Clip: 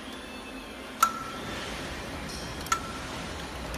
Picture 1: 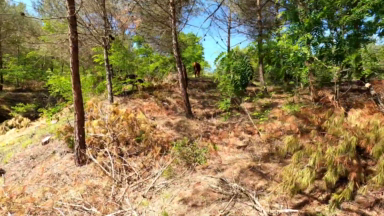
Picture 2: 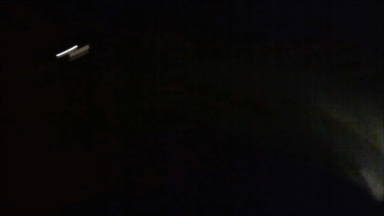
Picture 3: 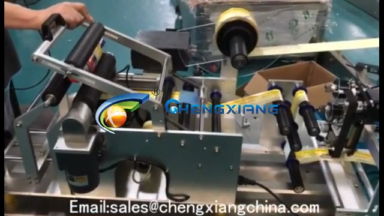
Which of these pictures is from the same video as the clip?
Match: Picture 3